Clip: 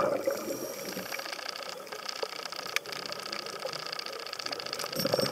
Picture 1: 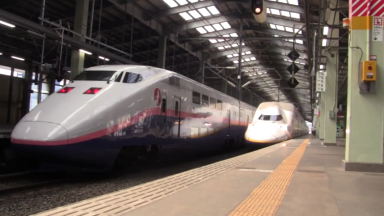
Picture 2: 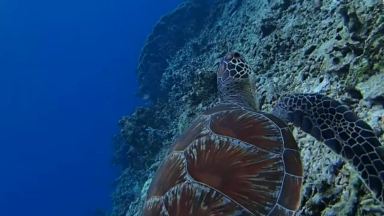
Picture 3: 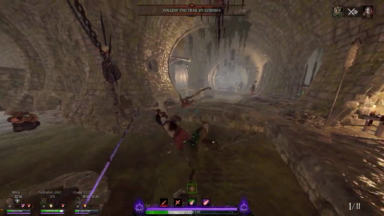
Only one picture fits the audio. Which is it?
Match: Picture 2